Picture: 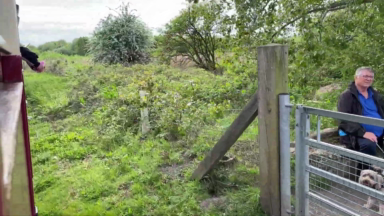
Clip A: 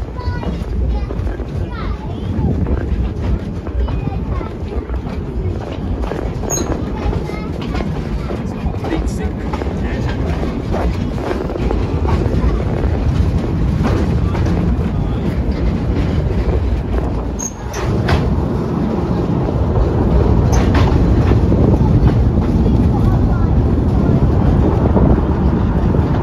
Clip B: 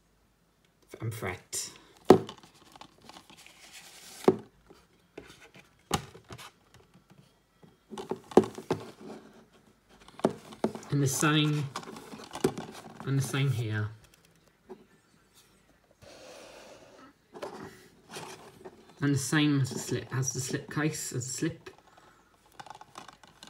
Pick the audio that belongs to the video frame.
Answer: A